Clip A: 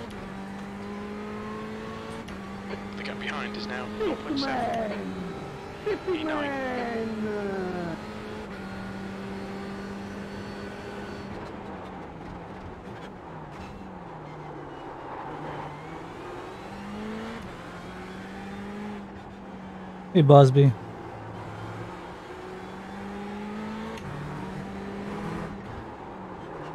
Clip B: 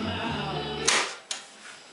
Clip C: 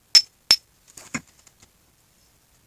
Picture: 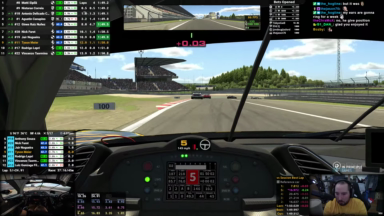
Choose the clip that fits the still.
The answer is A